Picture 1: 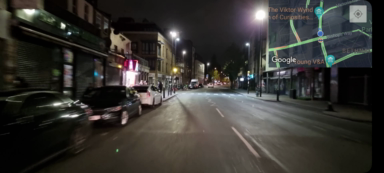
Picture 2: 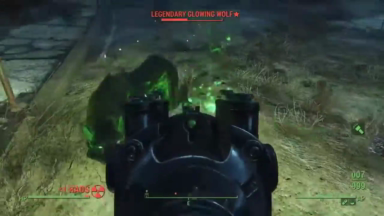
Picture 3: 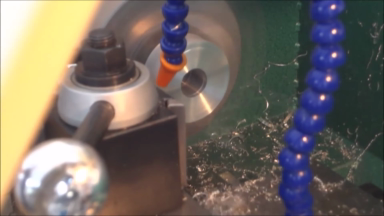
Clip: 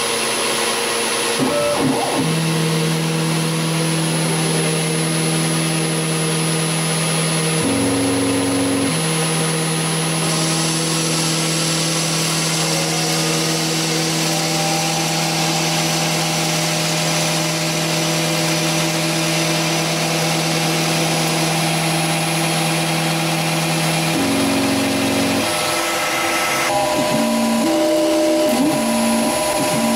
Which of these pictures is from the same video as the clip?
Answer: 3